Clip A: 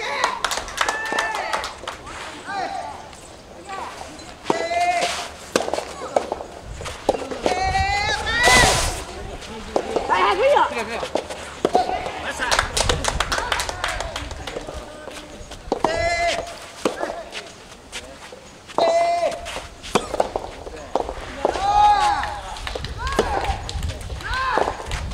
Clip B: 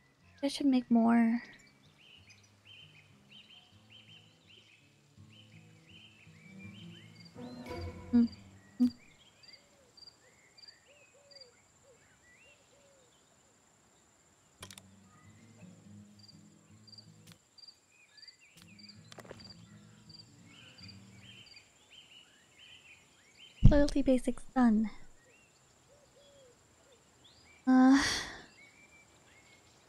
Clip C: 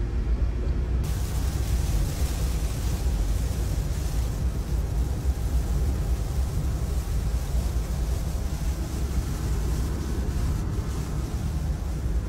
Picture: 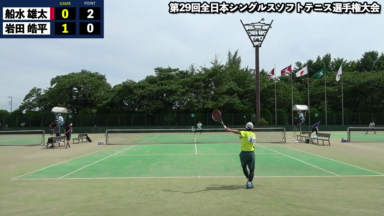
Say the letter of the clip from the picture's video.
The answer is A